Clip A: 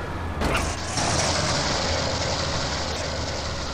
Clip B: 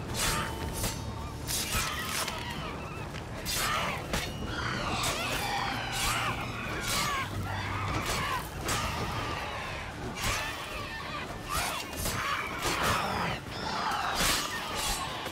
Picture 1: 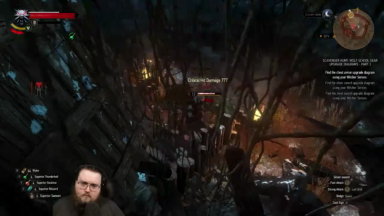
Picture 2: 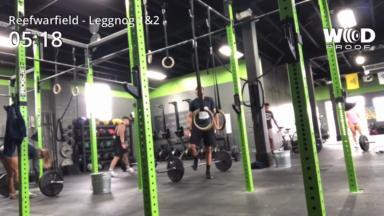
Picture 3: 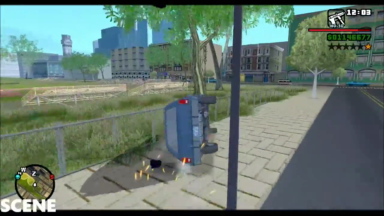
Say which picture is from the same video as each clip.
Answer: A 3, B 1